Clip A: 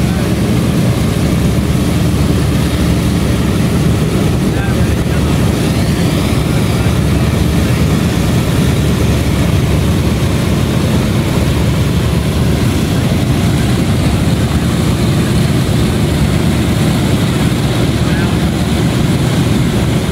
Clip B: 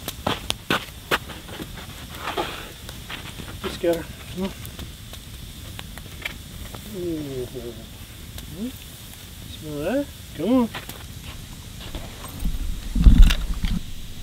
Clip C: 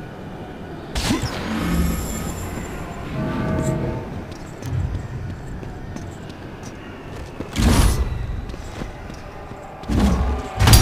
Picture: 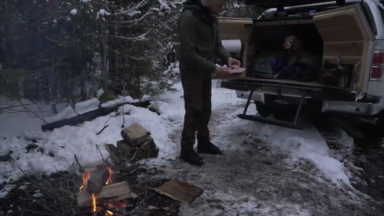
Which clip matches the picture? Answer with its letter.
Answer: B